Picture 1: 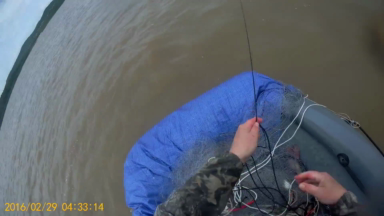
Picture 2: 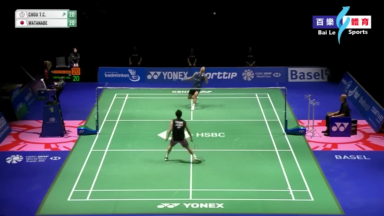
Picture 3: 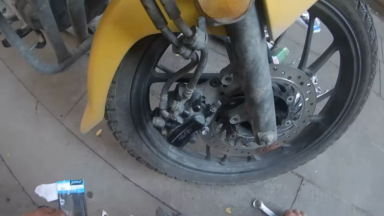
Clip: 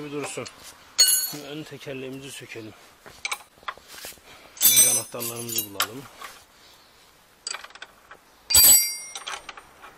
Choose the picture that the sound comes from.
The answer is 3